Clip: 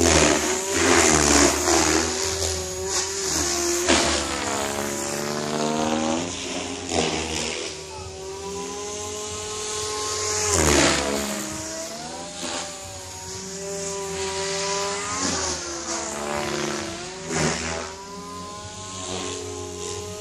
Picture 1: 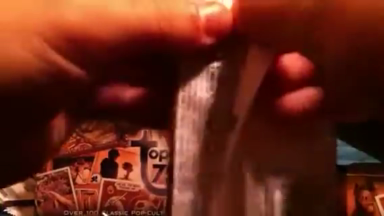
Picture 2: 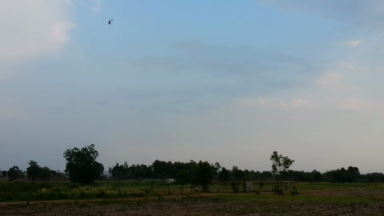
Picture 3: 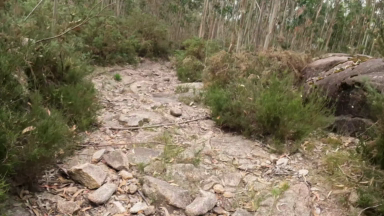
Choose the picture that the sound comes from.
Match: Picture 2